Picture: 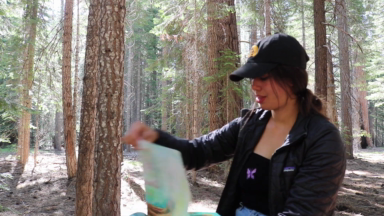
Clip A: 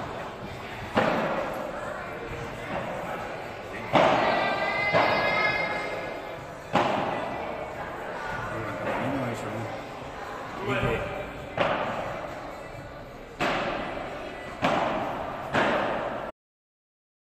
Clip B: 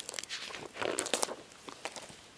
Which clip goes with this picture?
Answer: B